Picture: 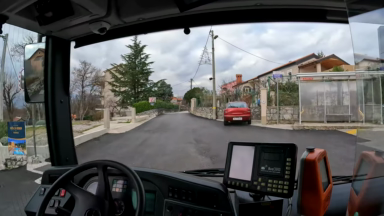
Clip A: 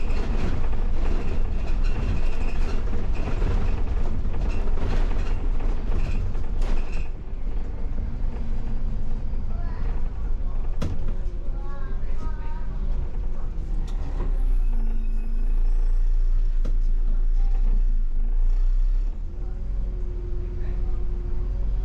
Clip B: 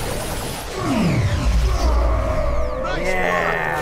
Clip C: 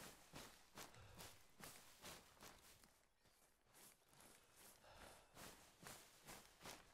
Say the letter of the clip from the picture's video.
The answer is A